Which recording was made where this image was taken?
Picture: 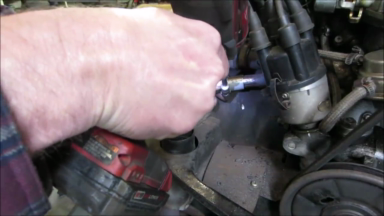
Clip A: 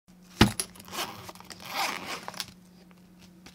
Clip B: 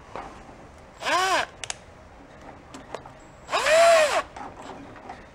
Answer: B